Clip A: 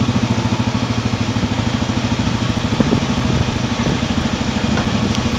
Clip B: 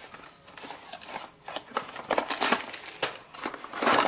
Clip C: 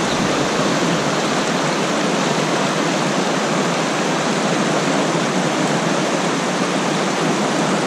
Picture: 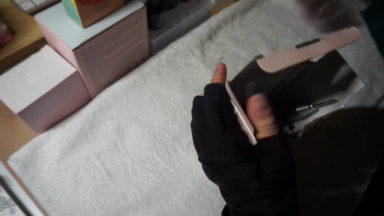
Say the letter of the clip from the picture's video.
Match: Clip B